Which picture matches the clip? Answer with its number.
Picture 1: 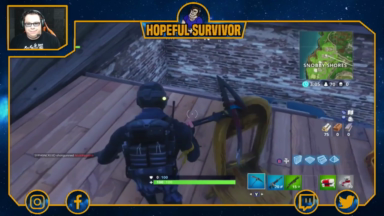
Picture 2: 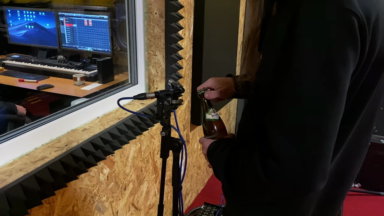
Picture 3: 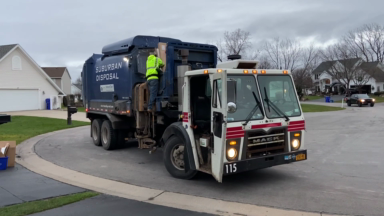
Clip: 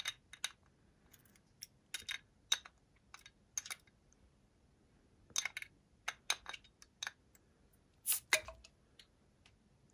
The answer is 2